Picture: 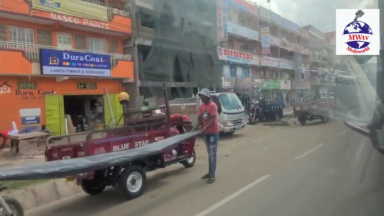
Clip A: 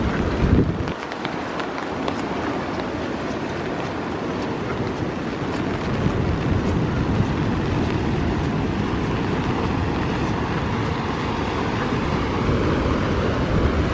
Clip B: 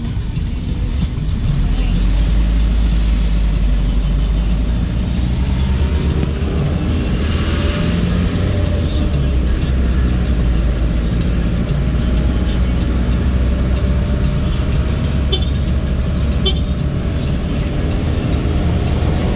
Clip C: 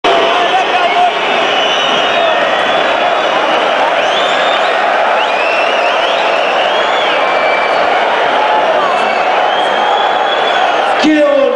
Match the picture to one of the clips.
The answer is B